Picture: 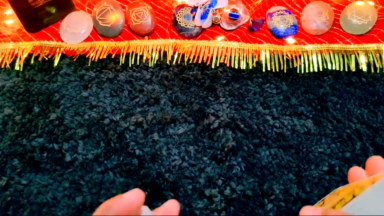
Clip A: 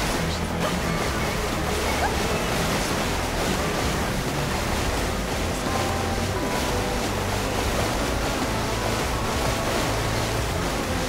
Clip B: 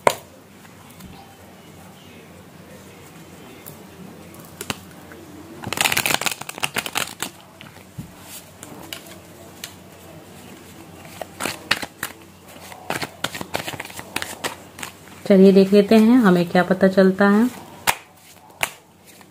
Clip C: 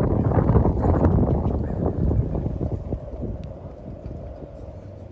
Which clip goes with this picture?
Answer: B